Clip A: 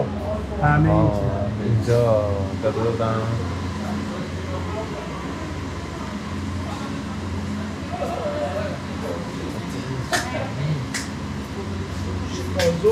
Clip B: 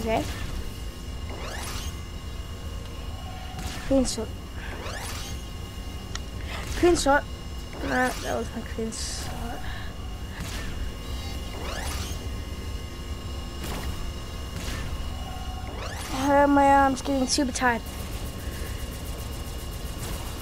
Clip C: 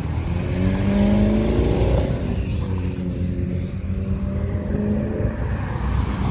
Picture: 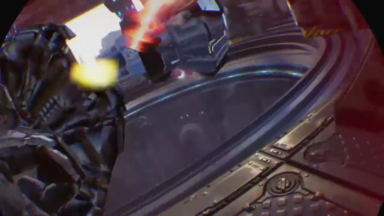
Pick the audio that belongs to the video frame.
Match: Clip B